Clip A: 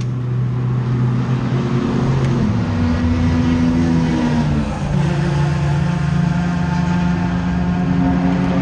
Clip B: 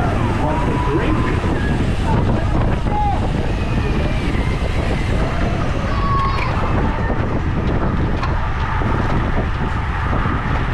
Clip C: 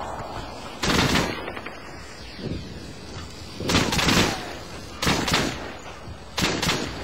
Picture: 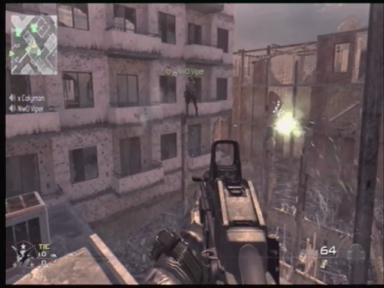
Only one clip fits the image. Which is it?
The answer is C